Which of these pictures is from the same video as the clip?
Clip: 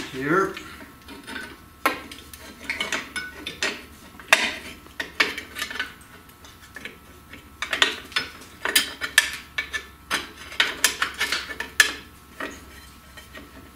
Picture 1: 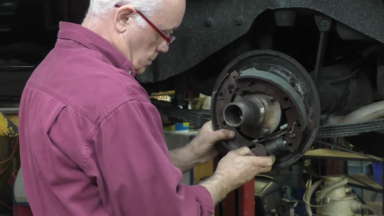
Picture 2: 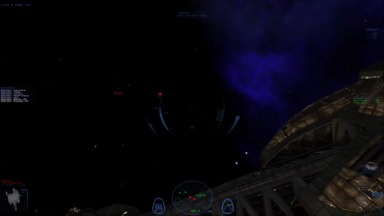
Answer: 1